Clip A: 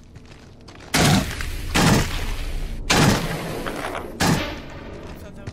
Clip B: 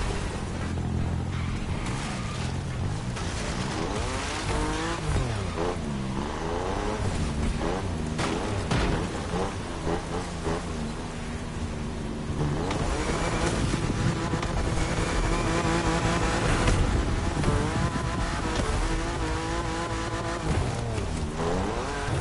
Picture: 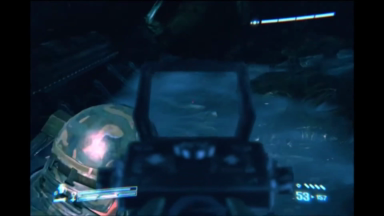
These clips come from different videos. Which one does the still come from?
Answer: A